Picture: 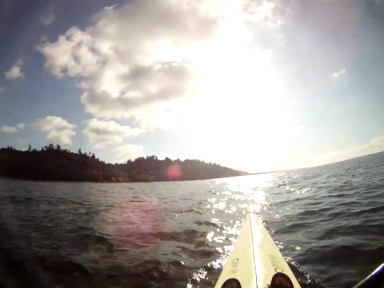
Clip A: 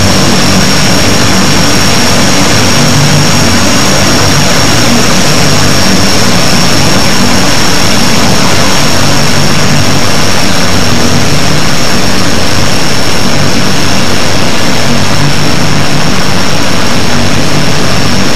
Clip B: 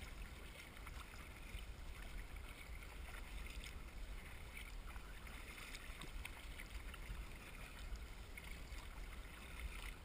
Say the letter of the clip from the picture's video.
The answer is B